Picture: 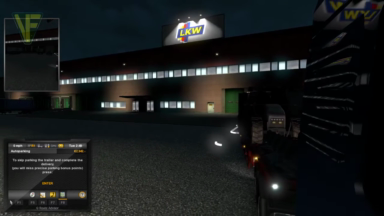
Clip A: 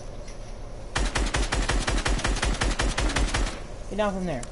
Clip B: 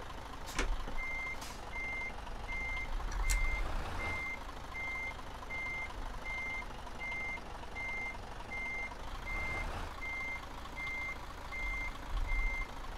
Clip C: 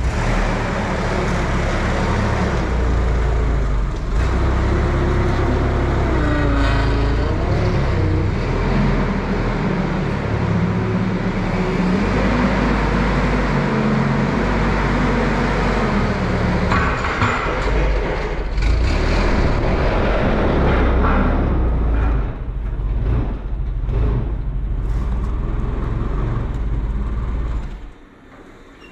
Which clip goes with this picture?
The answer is B